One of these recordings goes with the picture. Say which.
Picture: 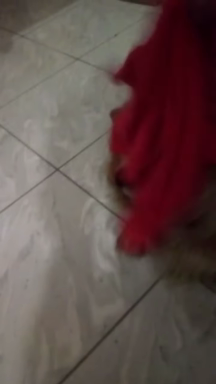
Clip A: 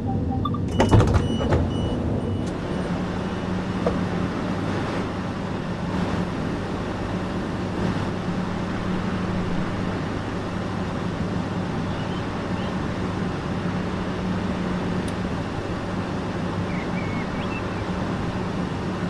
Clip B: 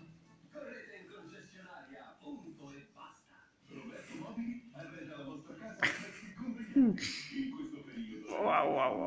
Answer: B